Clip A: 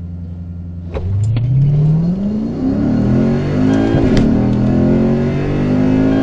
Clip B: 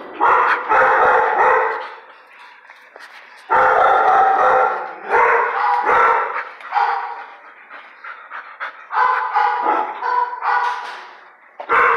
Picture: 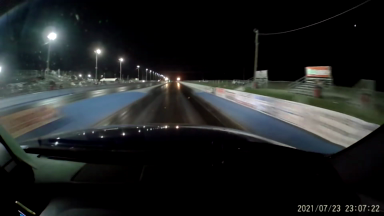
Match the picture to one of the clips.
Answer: A